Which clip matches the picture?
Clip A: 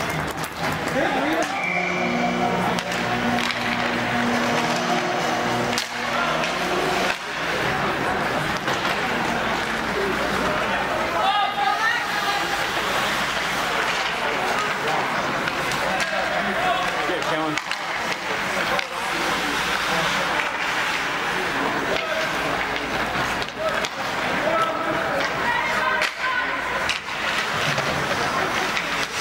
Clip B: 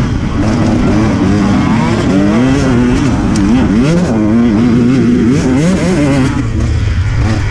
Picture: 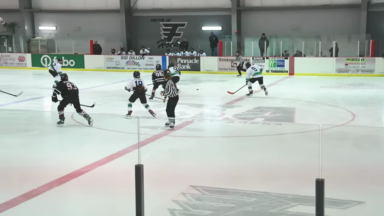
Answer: A